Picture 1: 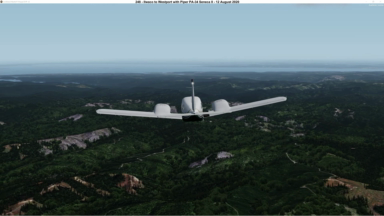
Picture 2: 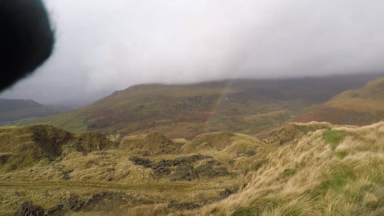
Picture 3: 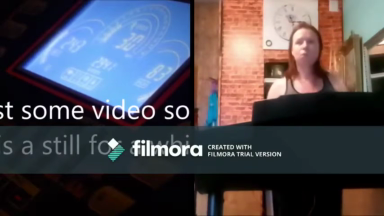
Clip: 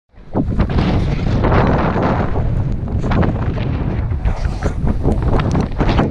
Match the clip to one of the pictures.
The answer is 2